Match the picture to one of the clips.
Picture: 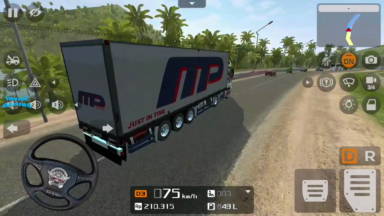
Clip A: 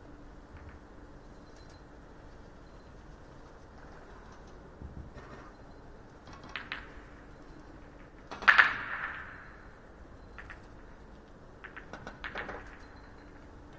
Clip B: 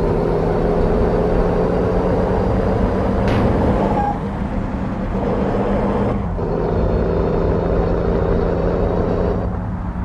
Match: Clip B